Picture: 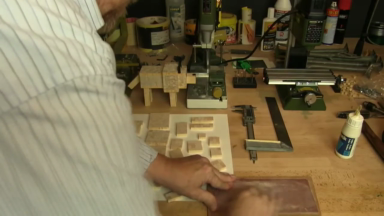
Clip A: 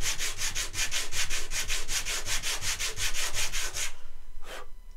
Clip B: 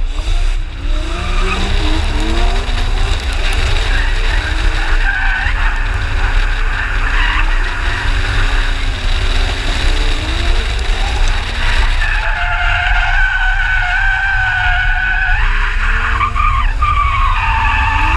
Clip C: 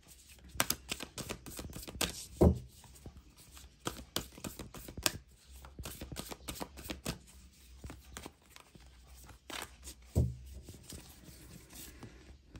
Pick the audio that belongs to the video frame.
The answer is A